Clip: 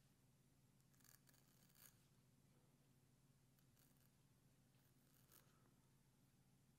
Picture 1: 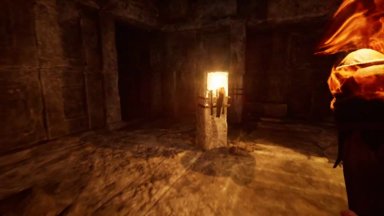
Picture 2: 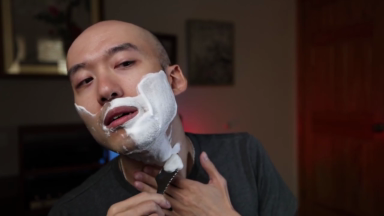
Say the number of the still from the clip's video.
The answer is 2